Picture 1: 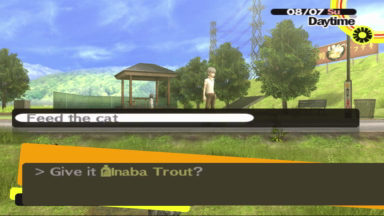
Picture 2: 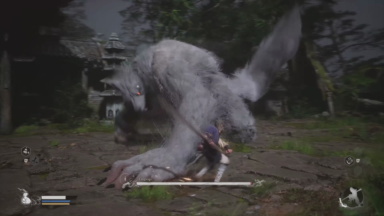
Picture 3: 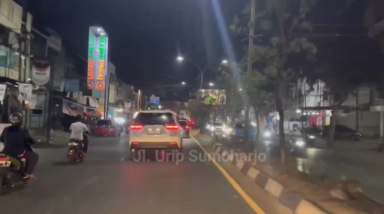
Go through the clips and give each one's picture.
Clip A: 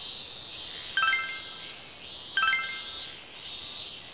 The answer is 1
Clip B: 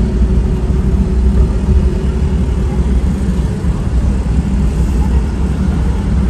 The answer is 3